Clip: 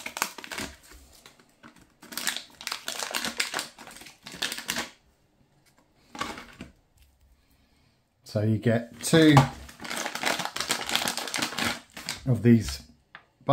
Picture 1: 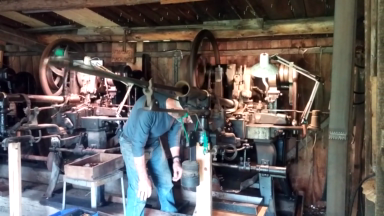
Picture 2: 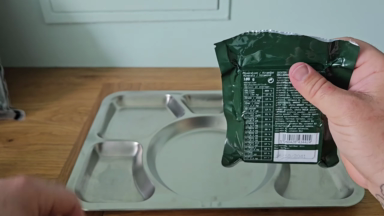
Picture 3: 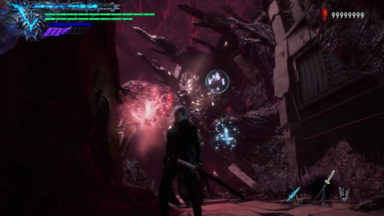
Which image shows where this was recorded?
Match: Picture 2